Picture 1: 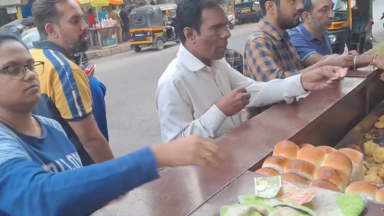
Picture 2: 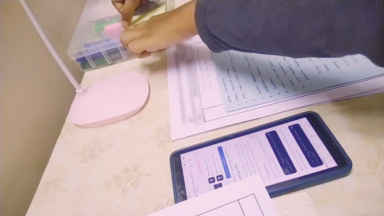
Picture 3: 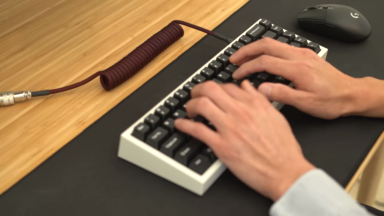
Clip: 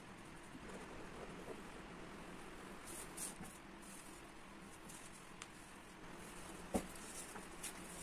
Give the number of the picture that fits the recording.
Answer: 2